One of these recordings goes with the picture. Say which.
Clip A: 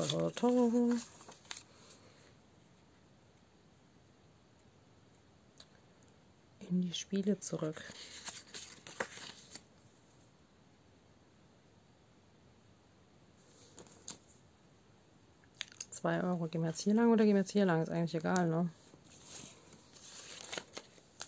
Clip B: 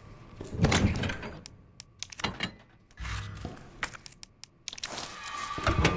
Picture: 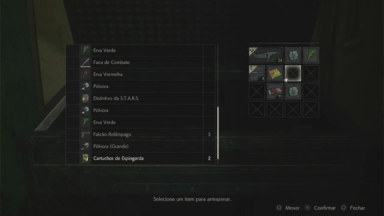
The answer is B